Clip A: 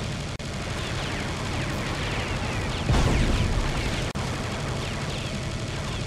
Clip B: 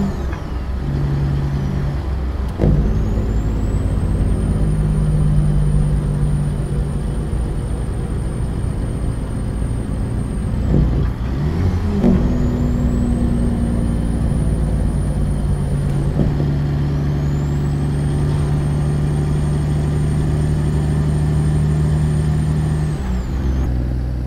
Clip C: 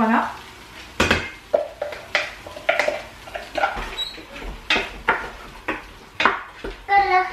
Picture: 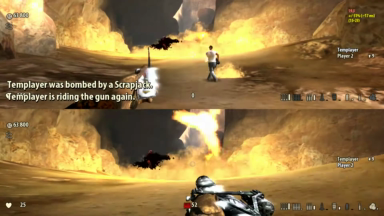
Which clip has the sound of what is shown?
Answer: A